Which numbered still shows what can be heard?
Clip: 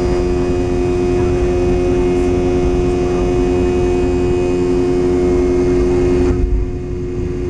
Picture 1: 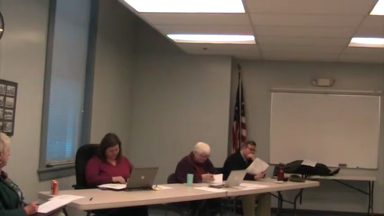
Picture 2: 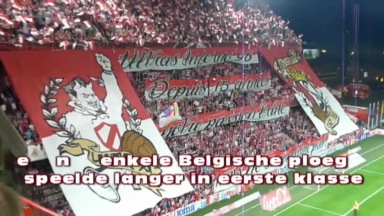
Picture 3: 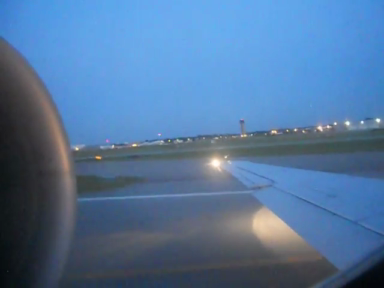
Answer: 3